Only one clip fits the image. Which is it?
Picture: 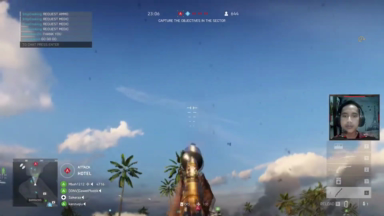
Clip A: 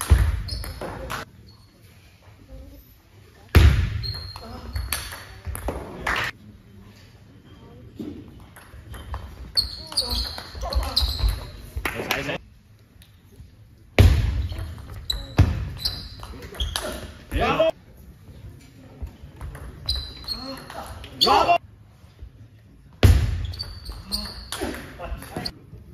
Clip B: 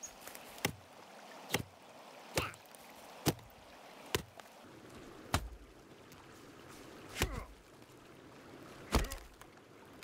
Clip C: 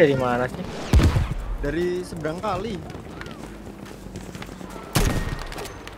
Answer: C